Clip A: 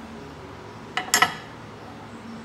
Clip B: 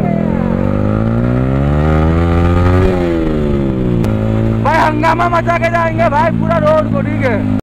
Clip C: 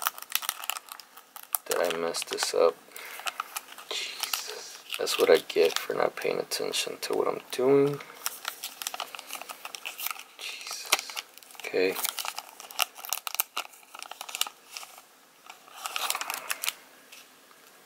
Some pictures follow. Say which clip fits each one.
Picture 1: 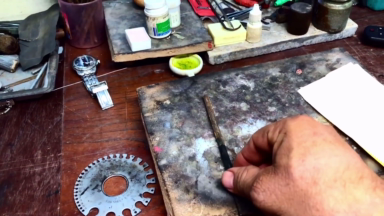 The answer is A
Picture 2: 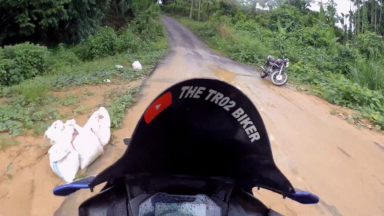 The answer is B